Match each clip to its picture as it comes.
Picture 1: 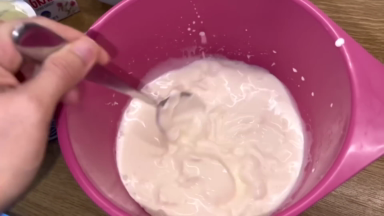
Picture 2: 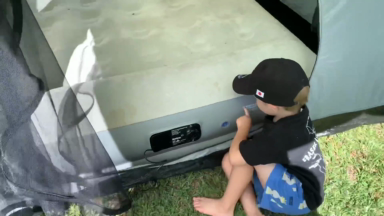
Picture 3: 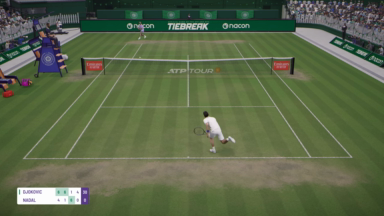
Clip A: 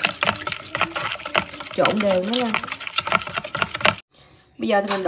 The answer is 1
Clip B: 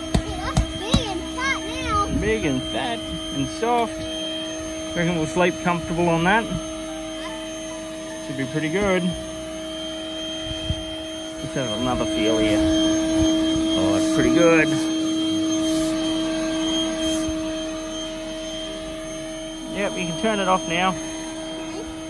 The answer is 2